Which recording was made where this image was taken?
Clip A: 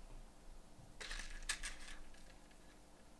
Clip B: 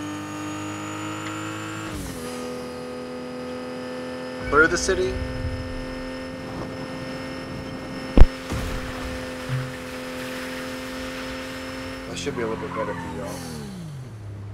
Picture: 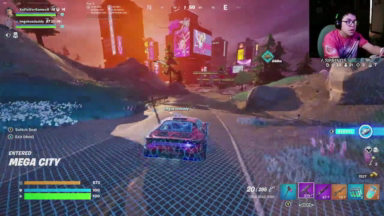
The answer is B